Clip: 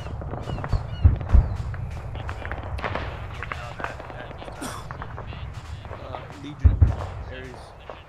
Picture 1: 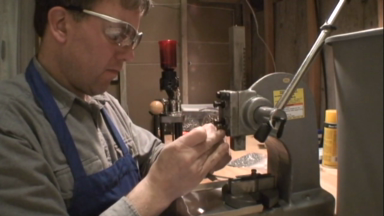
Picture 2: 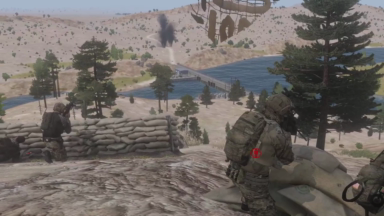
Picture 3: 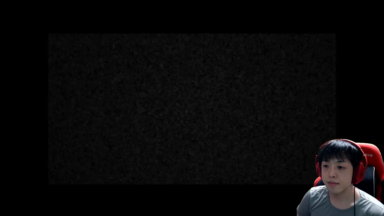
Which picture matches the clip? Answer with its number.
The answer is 2